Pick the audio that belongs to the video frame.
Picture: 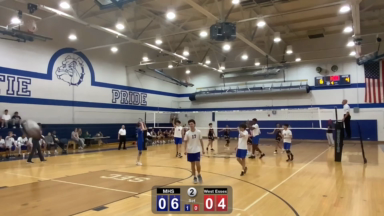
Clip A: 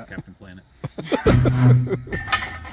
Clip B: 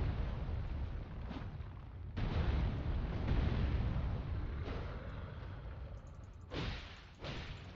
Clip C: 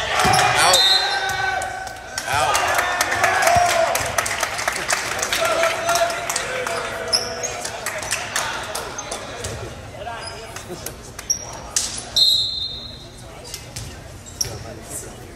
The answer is C